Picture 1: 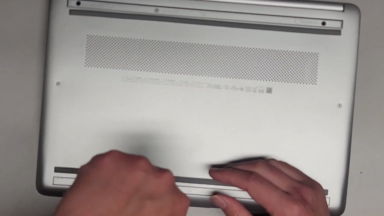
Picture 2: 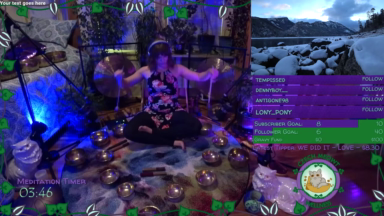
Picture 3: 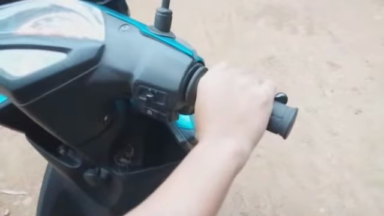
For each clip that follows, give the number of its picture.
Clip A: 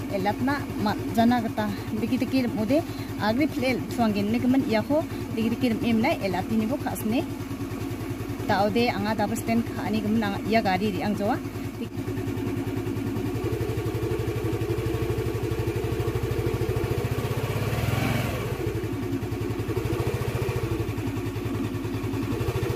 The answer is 3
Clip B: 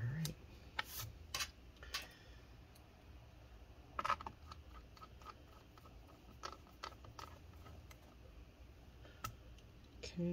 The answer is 1